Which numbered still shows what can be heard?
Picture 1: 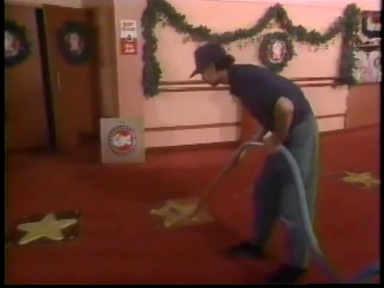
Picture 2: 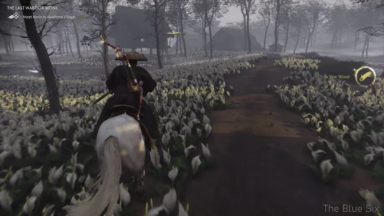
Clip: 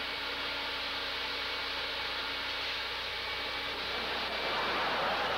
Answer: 1